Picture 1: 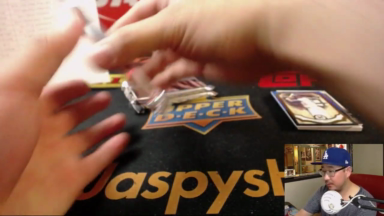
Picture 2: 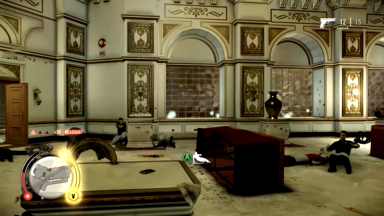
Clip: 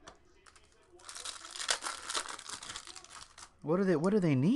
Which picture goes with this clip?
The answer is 1